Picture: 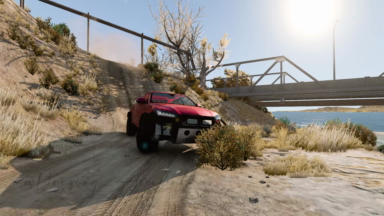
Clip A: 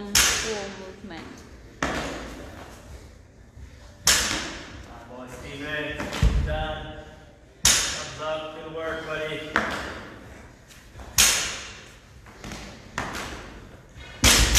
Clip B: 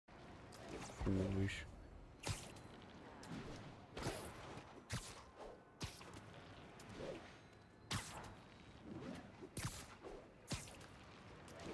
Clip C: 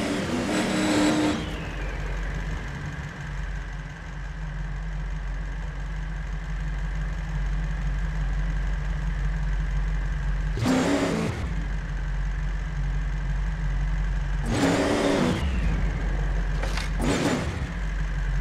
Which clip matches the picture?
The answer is C